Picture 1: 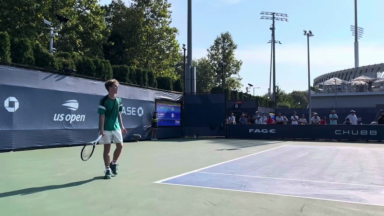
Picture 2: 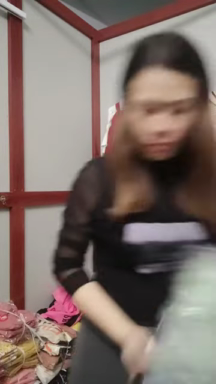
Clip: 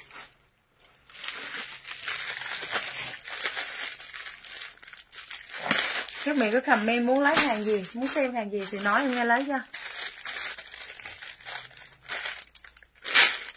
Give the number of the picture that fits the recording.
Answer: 2